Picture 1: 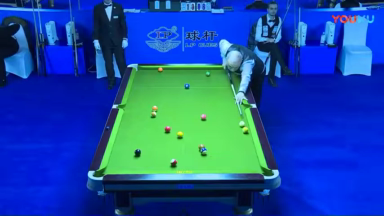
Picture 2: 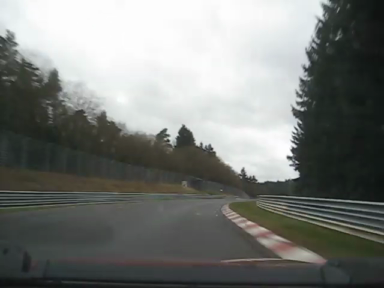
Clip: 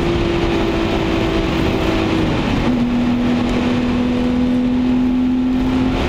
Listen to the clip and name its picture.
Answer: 2